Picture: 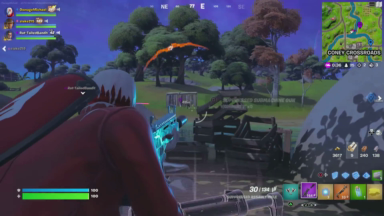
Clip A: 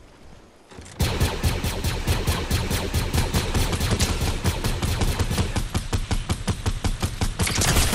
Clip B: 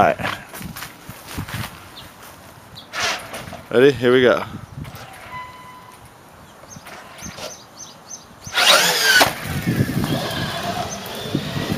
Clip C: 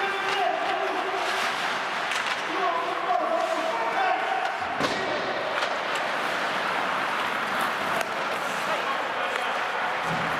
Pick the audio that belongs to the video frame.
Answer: A